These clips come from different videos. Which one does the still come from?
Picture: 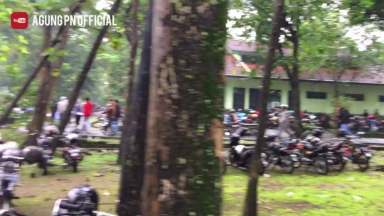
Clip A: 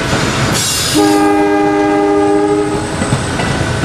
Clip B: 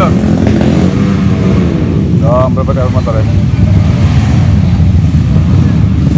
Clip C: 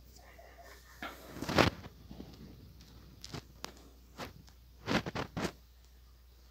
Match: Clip B